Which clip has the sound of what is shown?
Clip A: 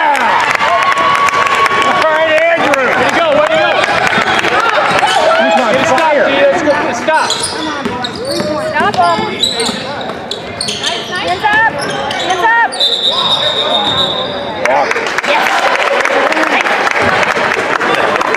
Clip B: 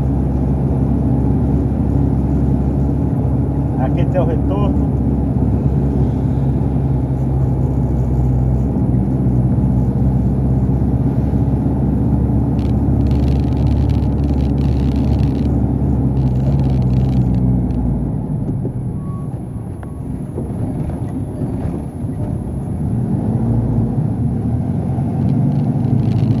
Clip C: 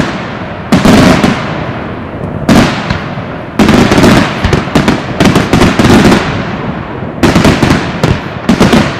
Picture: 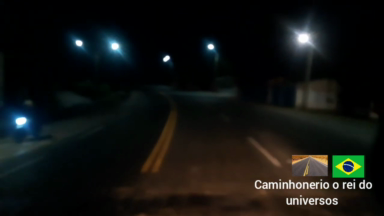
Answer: B